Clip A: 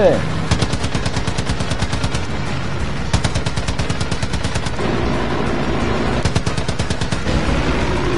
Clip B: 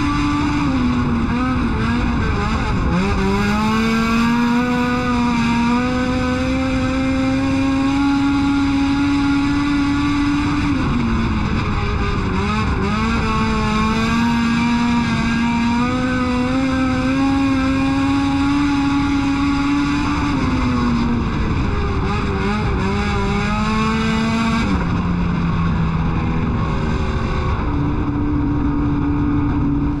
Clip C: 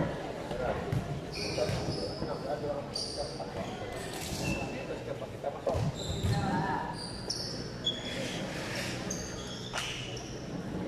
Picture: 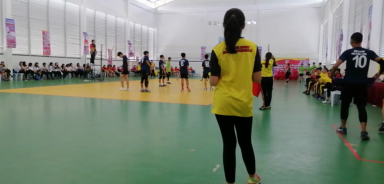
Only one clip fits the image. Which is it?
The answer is C